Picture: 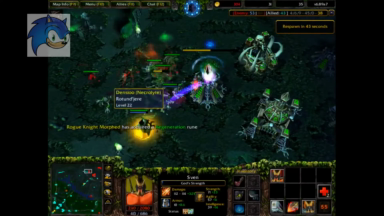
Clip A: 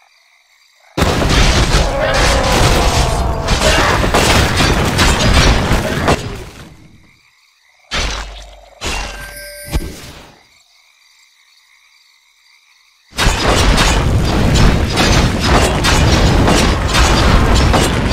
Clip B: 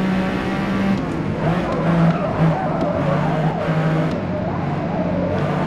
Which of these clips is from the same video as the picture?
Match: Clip A